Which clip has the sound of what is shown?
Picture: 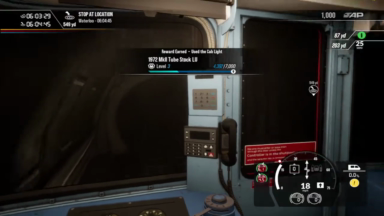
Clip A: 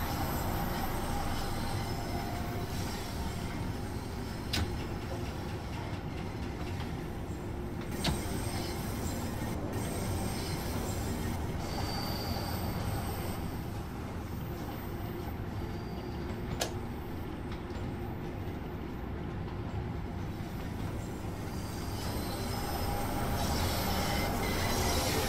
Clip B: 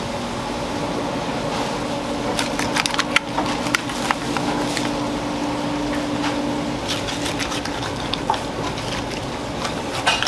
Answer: A